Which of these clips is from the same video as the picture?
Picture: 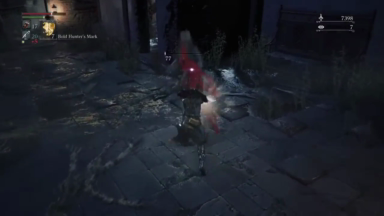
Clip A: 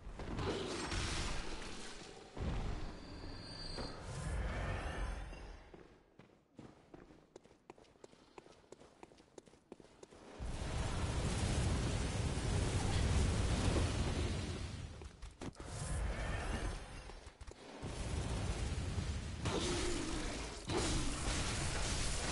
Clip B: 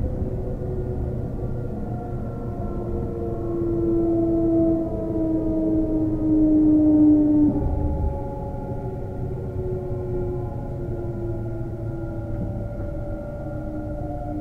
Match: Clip A